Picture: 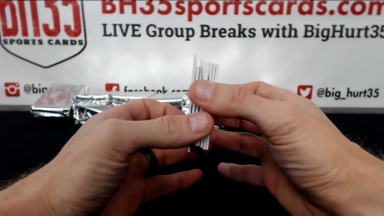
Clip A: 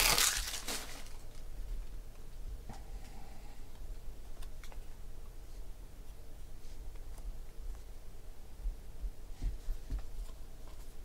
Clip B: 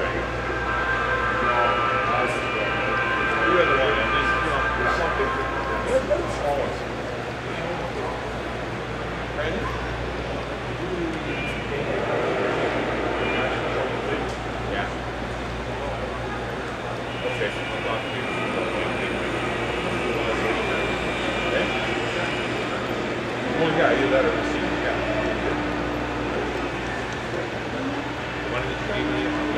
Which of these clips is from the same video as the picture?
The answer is A